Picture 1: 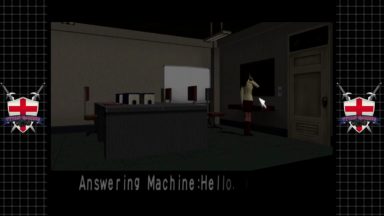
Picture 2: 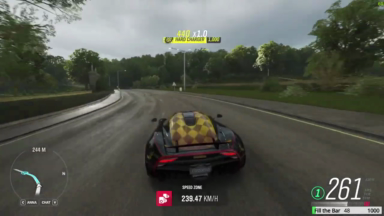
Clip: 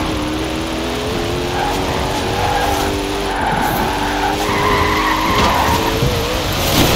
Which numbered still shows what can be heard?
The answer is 2